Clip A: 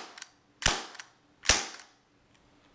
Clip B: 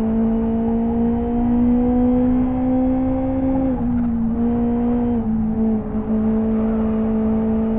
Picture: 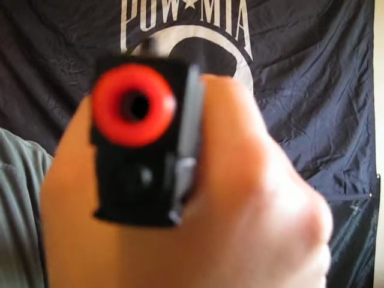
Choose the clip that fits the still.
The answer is A